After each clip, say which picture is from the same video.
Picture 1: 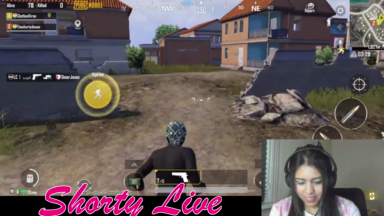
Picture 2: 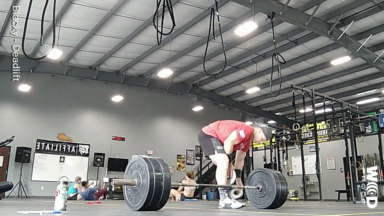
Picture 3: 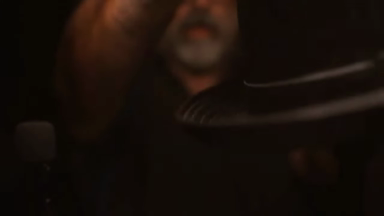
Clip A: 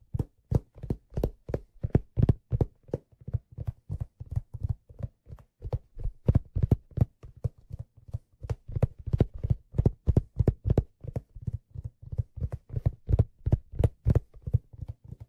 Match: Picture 3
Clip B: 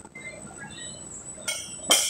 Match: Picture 2